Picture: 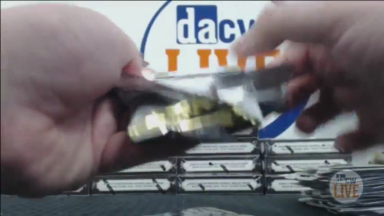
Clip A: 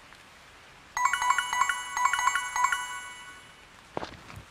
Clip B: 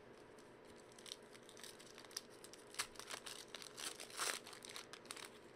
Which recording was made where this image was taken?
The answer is B